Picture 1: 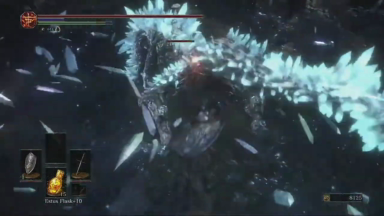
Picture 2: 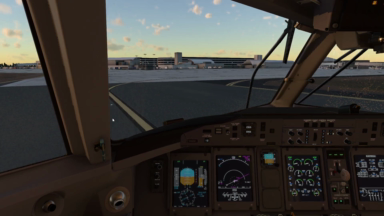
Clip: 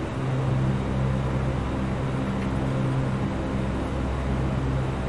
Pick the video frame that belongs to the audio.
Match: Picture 2